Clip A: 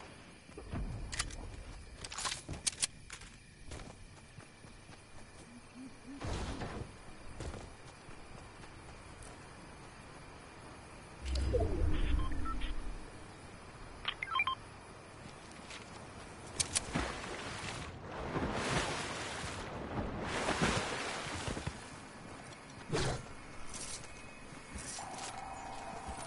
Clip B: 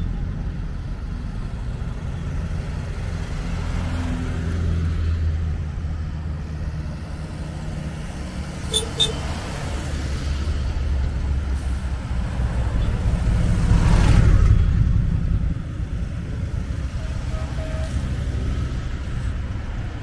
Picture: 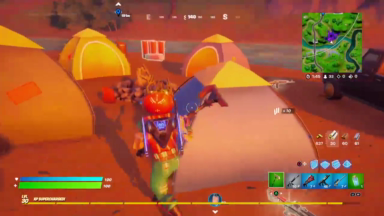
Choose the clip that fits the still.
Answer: A